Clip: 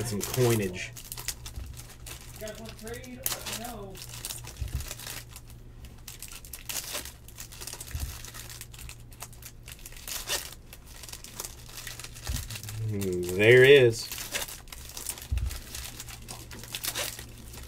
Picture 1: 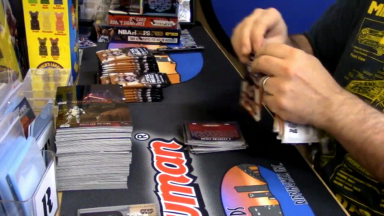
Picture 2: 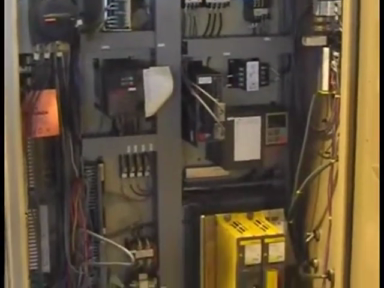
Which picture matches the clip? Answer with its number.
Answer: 1